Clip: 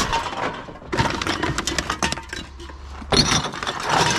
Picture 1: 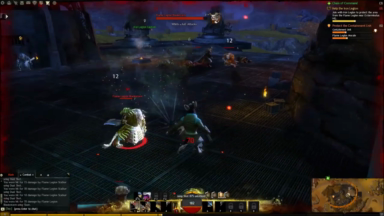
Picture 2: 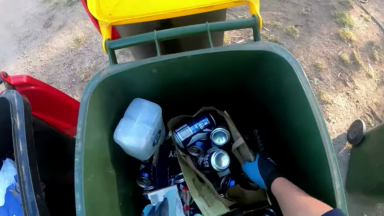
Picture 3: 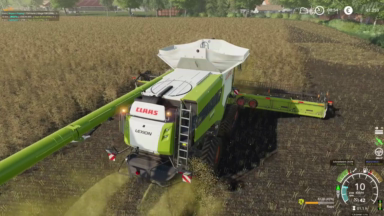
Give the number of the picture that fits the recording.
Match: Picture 2